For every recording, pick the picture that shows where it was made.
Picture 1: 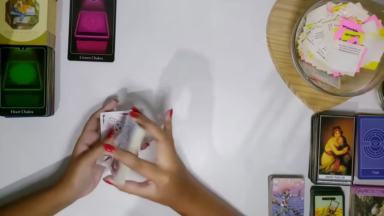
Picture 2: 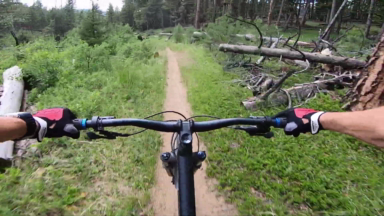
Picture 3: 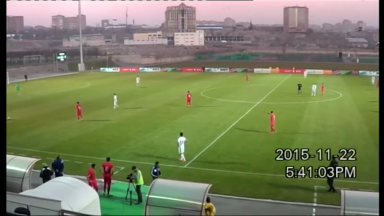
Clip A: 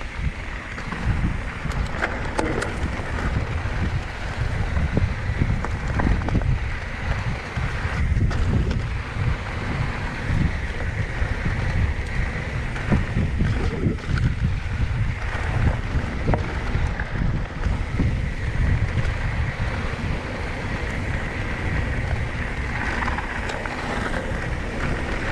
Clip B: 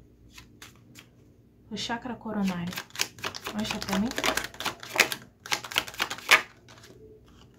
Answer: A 2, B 1